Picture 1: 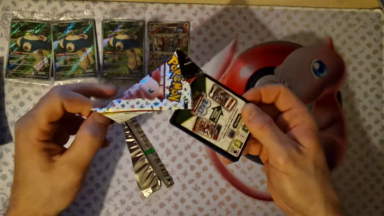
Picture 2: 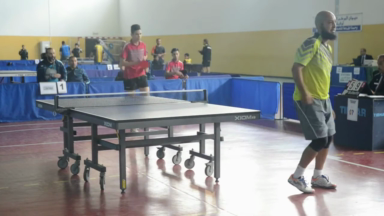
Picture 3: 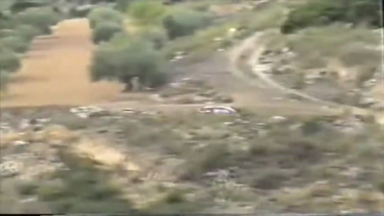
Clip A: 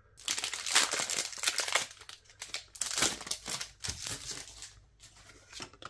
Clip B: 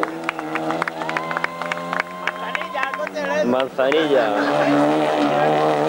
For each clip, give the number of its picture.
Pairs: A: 1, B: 3